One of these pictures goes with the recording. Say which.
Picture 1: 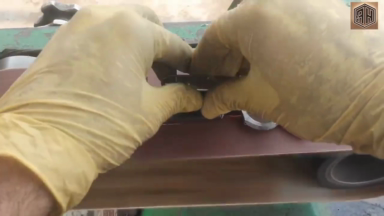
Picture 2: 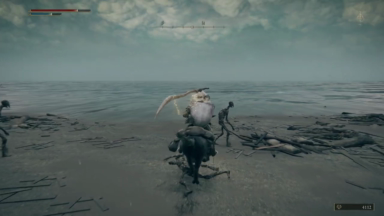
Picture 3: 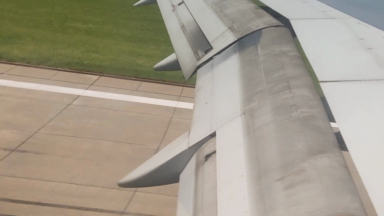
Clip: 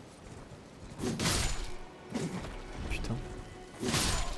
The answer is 2